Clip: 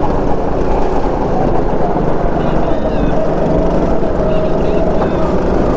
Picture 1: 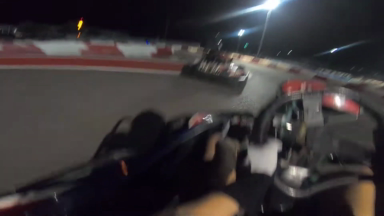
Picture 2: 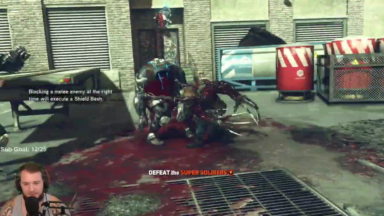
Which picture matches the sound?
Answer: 1